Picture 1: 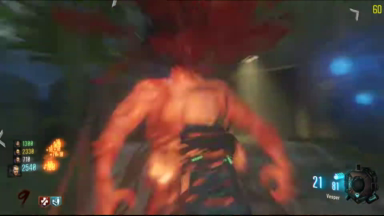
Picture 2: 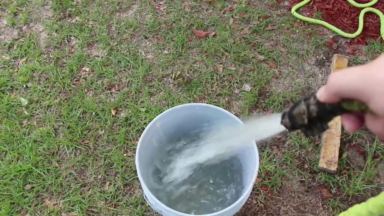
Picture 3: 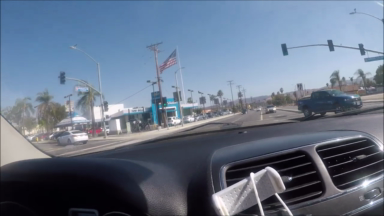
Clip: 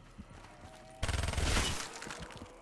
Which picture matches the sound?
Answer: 1